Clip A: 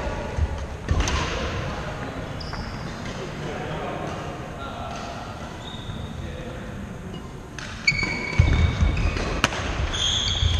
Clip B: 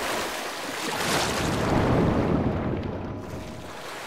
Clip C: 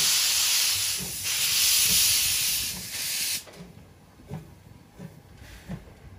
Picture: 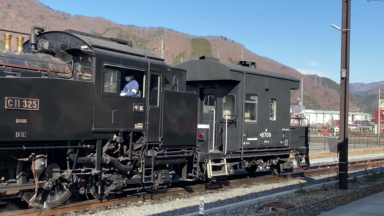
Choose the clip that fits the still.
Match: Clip C